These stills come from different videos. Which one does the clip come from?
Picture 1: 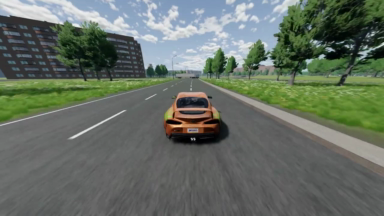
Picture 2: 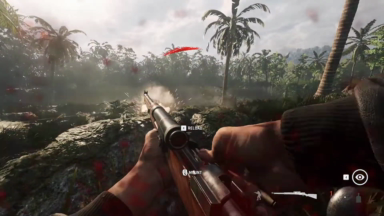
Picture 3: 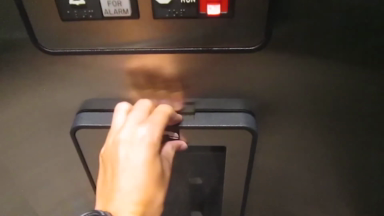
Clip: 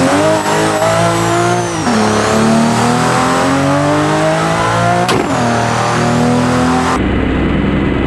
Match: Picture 1